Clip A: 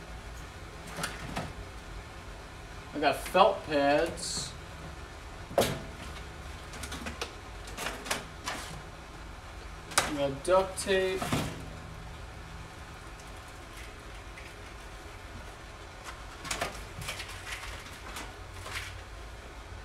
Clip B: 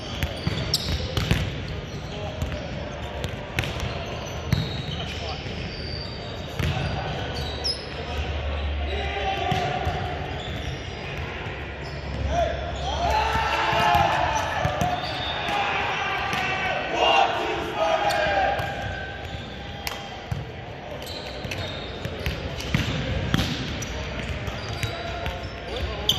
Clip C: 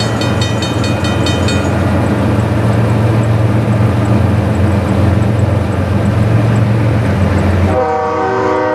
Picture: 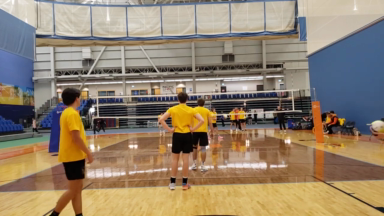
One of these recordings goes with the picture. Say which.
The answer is B